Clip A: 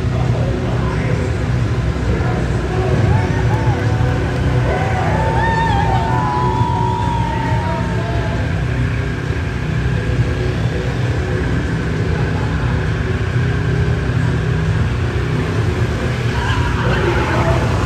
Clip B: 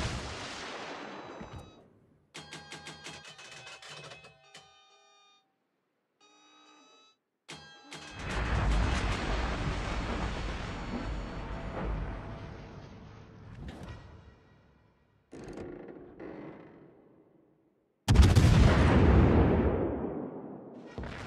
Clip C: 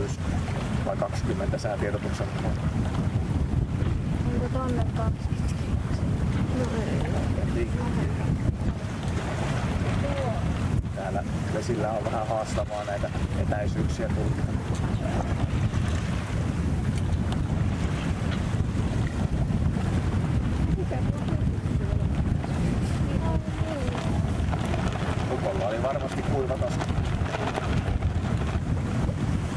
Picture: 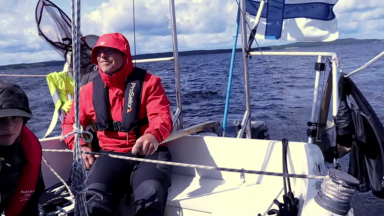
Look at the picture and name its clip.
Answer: C